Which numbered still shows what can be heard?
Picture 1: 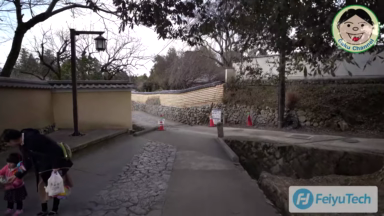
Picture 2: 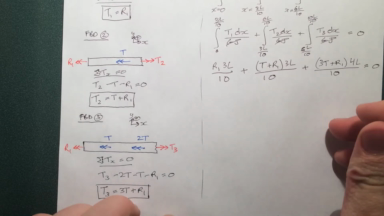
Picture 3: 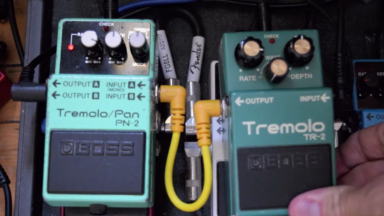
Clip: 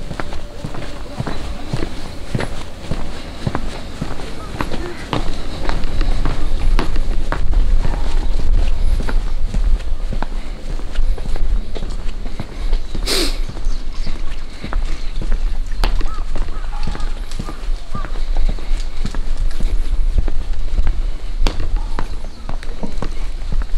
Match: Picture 1